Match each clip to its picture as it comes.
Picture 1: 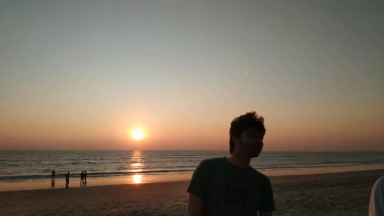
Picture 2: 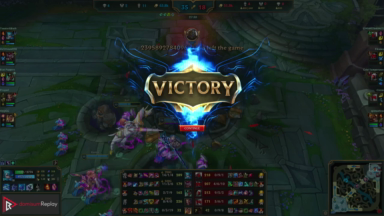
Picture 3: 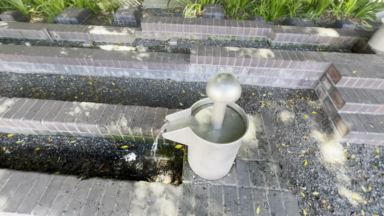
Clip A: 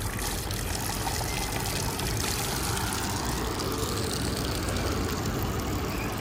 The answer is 3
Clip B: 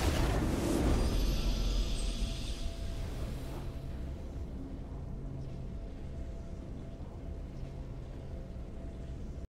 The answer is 2